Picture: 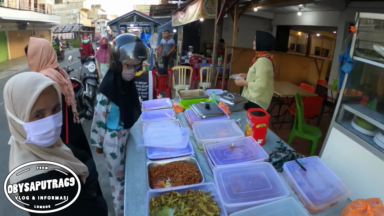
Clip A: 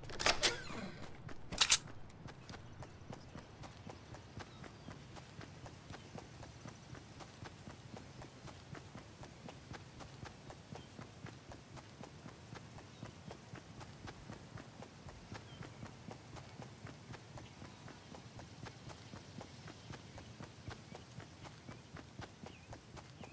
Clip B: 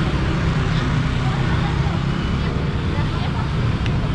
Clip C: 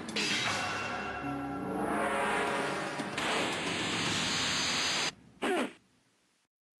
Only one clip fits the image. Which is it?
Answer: B